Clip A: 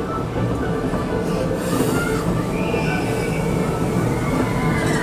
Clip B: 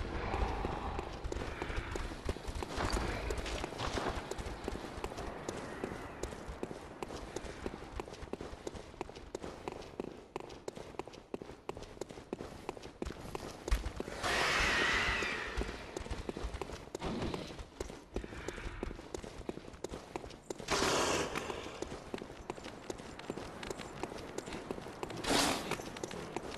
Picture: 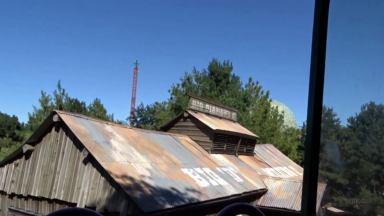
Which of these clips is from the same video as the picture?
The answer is A